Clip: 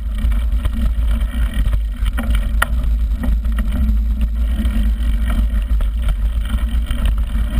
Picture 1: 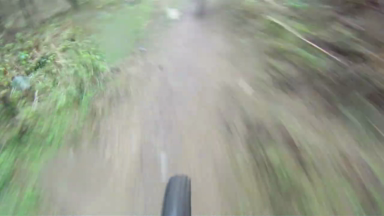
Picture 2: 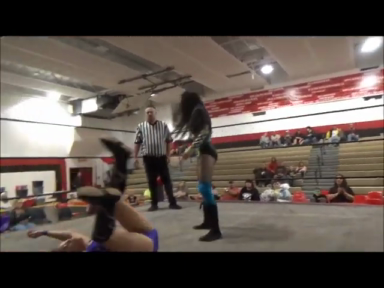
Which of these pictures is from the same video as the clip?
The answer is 1